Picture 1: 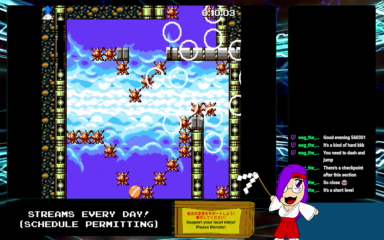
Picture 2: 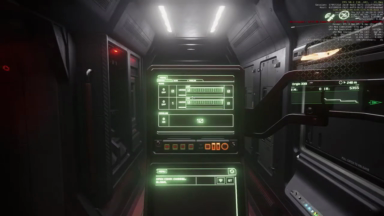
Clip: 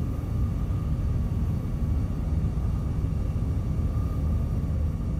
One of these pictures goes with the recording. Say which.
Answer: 2